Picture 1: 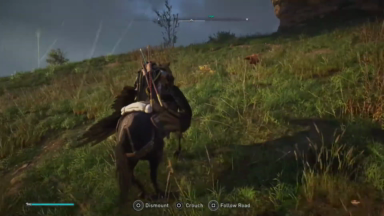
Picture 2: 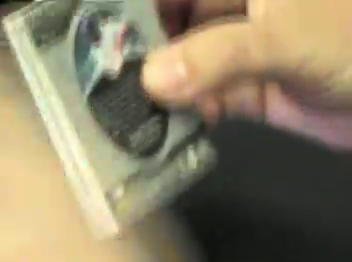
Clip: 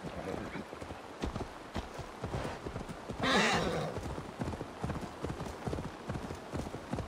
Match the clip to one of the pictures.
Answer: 1